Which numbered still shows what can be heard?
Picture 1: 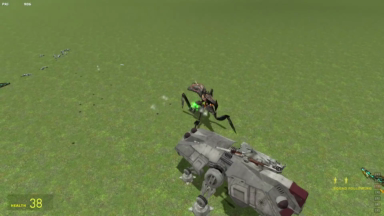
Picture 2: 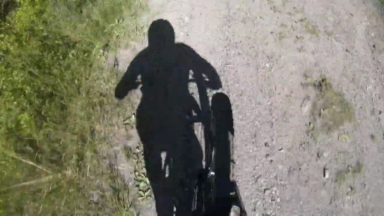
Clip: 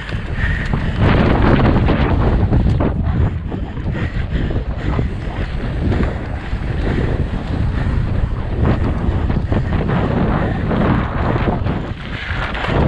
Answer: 2